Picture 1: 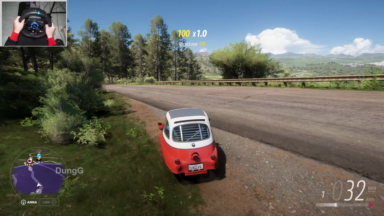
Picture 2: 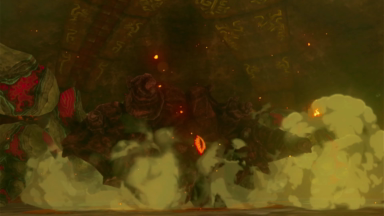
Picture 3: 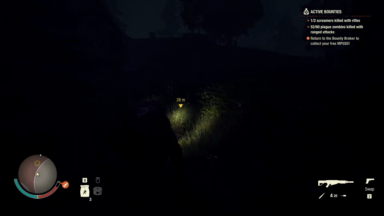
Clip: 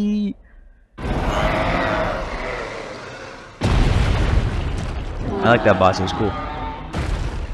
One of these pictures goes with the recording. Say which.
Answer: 2